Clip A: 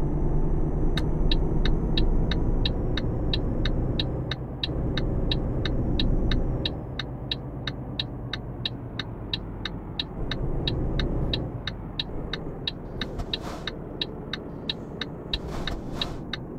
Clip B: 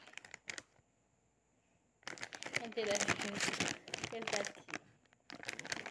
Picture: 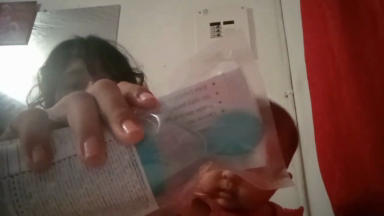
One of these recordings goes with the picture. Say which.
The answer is B